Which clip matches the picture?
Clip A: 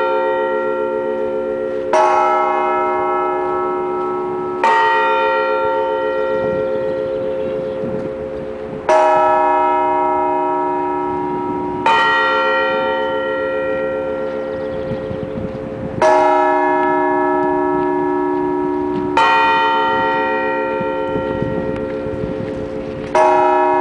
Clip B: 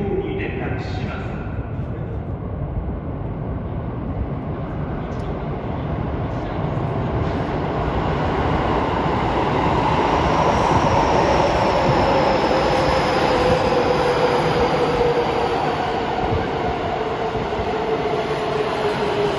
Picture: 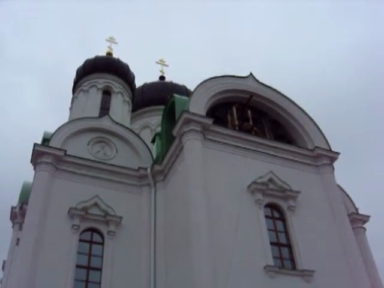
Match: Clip A